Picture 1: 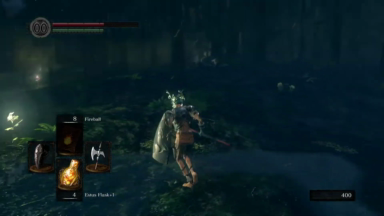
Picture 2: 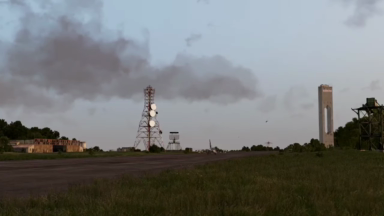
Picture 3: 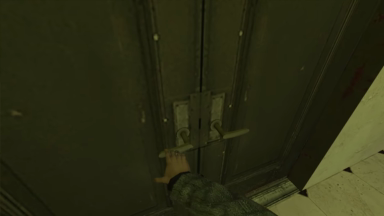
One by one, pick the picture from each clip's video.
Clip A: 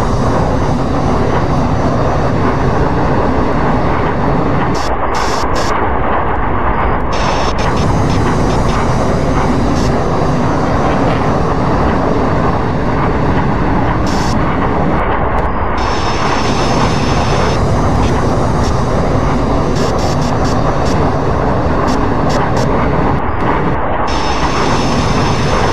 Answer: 2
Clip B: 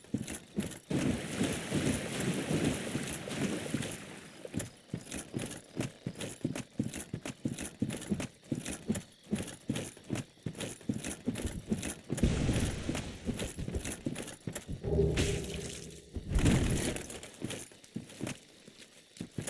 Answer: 1